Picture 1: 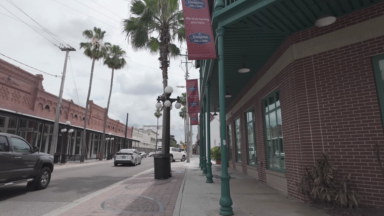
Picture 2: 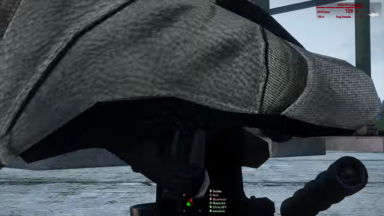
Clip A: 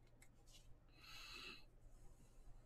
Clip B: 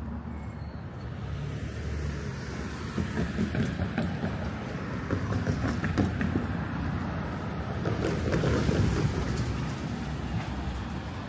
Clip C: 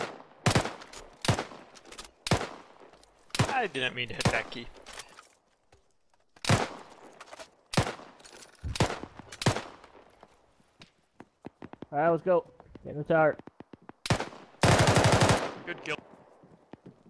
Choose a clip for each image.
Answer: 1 B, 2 C